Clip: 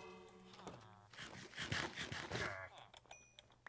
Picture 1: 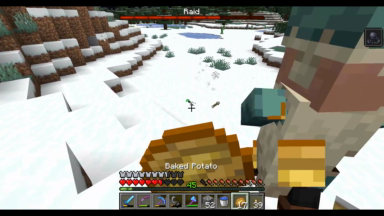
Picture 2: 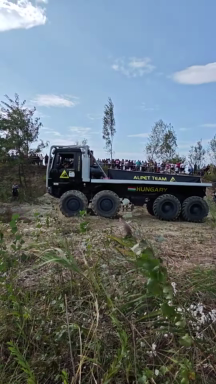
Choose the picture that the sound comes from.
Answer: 1